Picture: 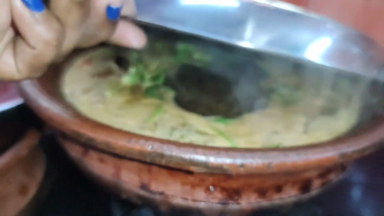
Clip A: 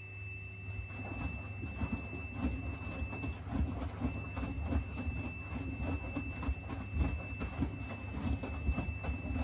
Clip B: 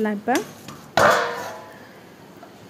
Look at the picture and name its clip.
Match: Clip B